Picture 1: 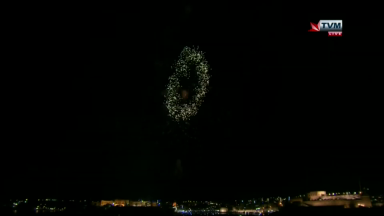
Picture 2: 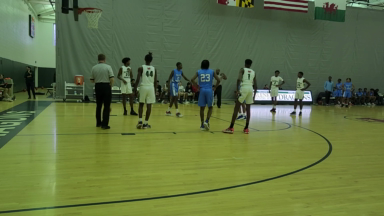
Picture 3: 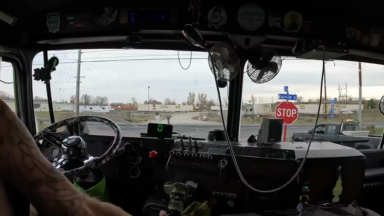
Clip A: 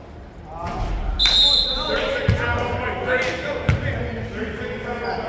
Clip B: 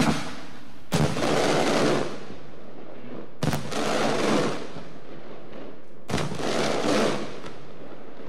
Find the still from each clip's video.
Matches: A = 2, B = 1